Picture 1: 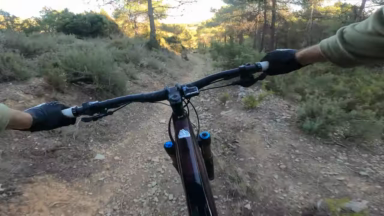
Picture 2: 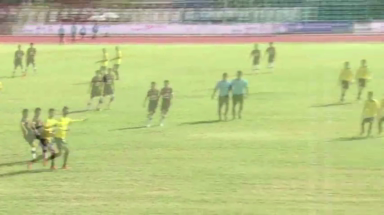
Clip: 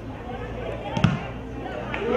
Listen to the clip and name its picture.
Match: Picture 2